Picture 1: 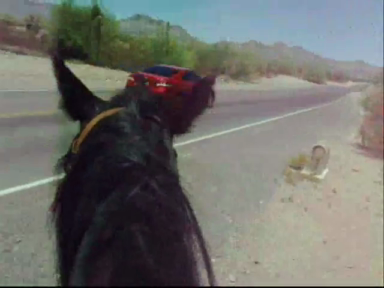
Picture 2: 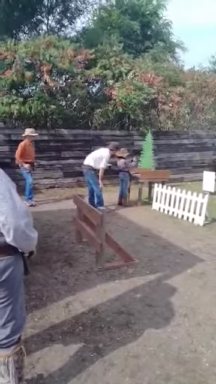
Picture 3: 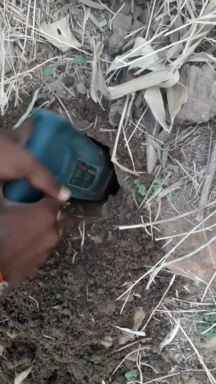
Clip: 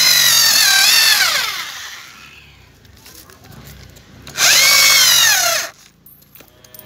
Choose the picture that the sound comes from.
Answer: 3